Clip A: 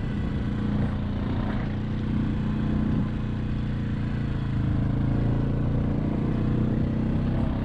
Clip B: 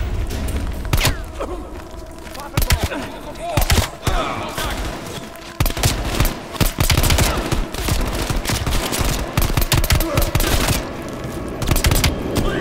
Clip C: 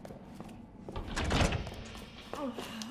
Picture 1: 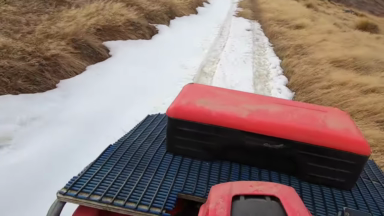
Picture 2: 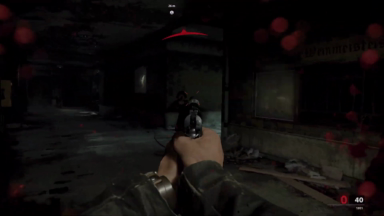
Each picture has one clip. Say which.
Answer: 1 A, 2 B